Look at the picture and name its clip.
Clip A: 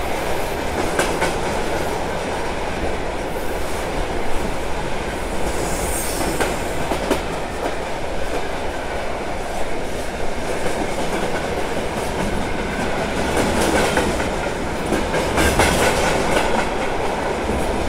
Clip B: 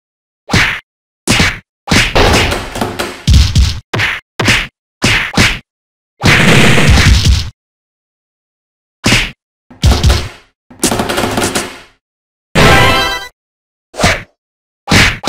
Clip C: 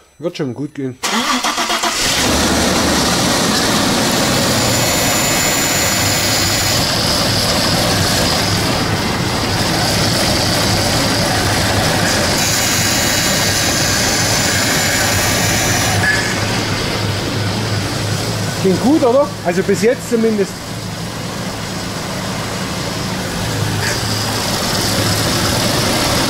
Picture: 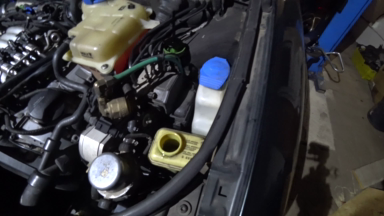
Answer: C